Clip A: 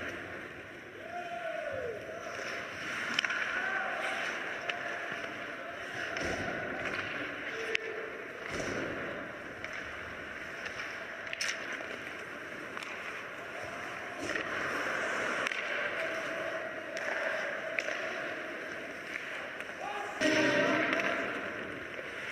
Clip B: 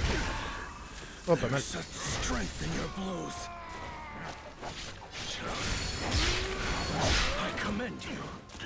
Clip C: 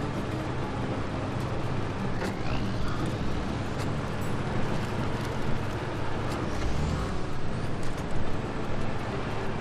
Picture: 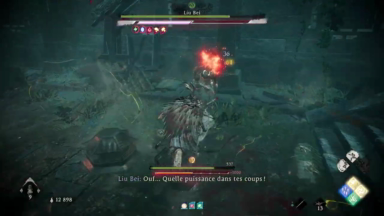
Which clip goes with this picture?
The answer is B